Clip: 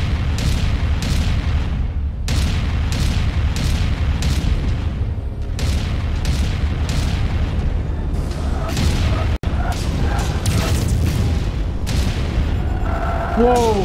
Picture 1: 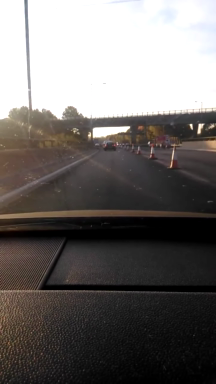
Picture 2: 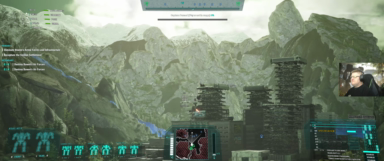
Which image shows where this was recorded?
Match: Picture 2